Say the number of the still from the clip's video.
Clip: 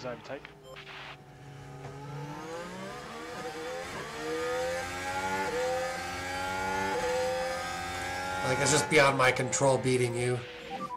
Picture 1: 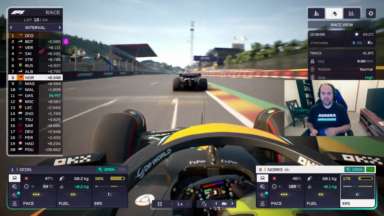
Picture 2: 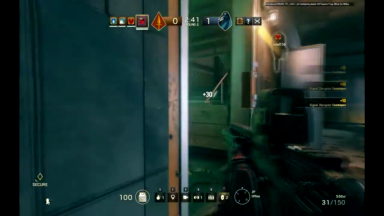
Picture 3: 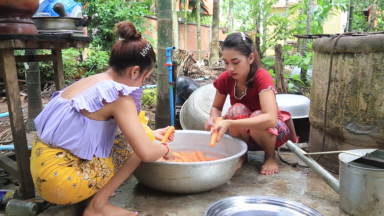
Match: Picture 1